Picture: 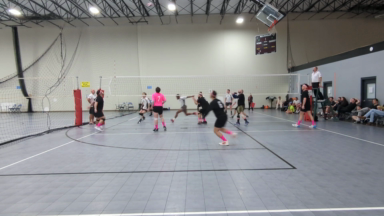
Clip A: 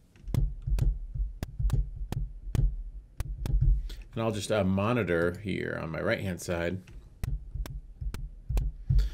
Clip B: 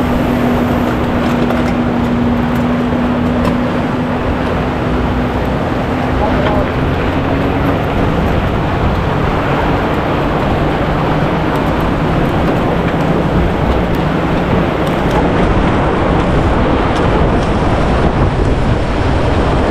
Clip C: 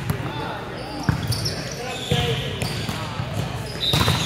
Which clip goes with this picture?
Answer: C